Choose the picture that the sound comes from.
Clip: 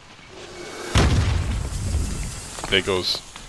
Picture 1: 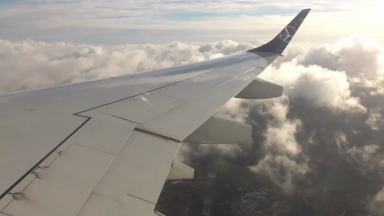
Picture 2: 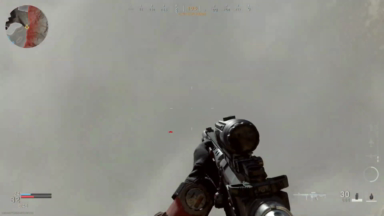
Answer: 2